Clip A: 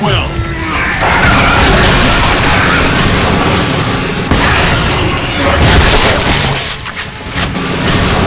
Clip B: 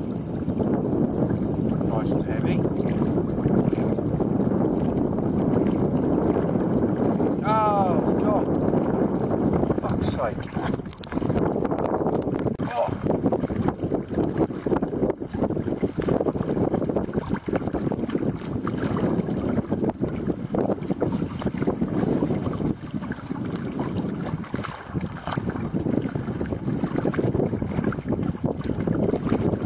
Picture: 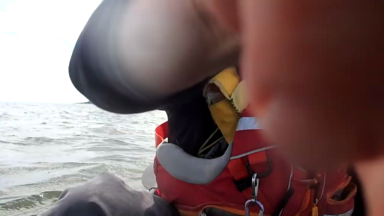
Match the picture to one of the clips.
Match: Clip B